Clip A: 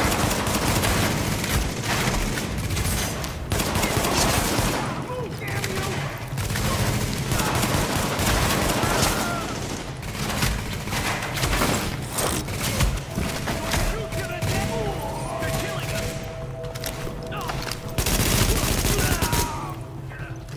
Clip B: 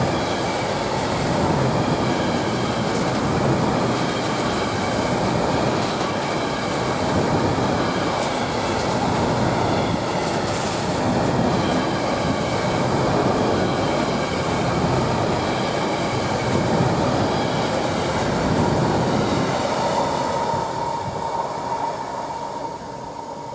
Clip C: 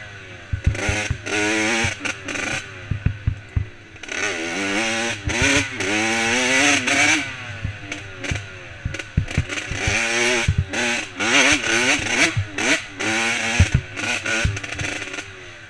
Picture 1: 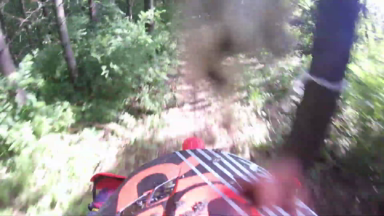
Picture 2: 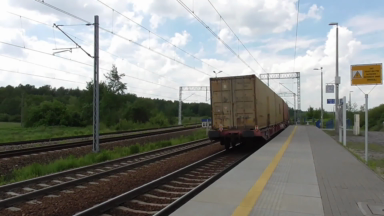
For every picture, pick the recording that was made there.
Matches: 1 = C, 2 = B